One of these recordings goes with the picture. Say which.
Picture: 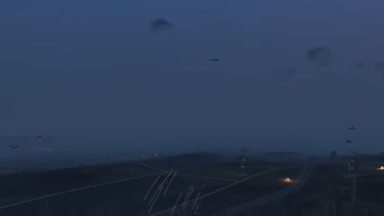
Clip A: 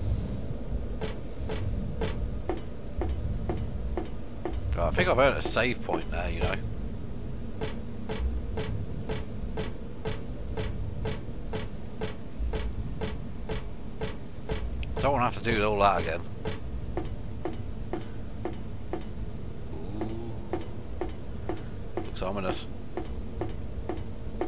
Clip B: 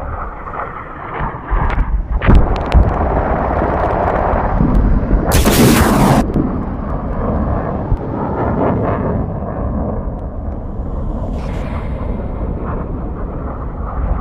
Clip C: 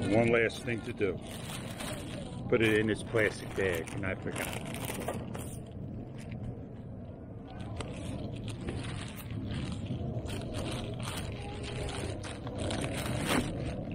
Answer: B